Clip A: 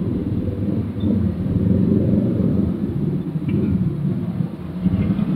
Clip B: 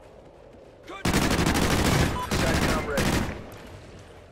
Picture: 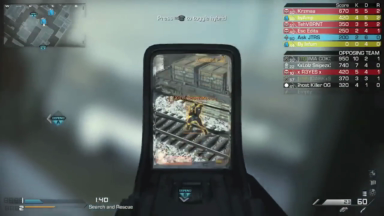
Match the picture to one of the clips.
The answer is B